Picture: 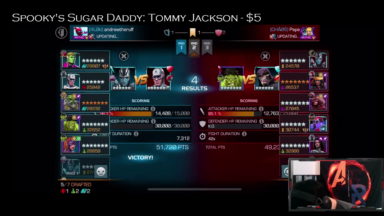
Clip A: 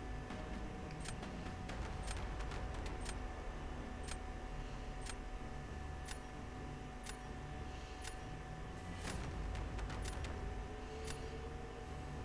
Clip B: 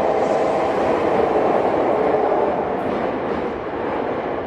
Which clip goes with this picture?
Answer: A